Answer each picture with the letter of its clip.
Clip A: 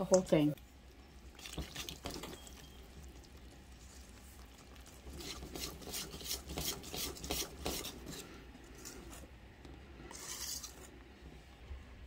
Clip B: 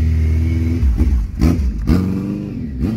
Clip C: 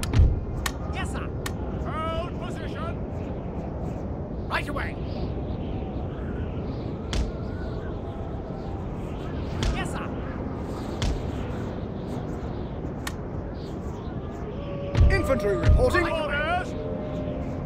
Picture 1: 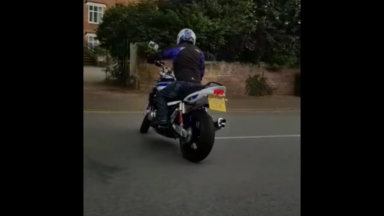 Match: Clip B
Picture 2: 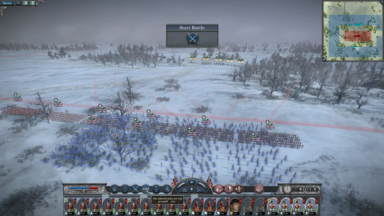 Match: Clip C